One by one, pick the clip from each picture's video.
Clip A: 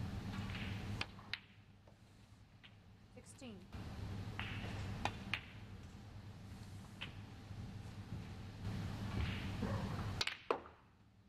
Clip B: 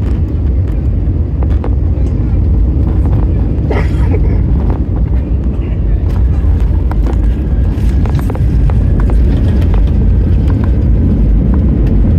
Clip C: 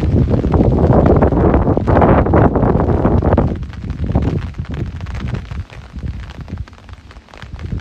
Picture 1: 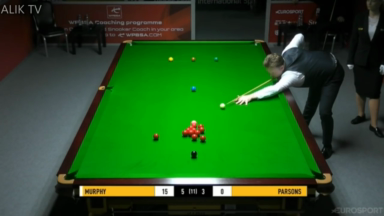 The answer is A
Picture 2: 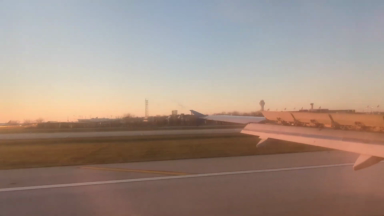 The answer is B